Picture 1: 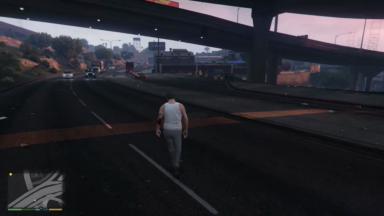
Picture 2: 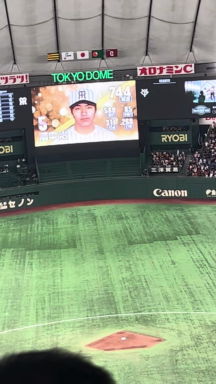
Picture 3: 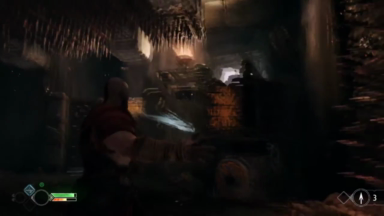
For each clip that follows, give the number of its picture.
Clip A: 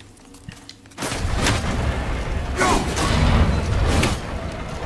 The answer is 3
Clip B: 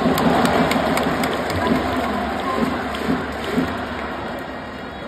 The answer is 2